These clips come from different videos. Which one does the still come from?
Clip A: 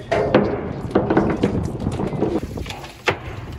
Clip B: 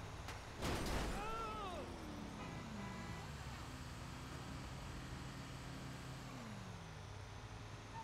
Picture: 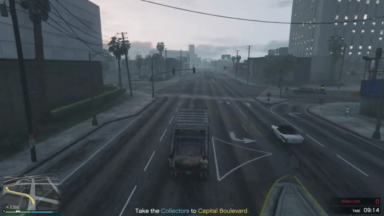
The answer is B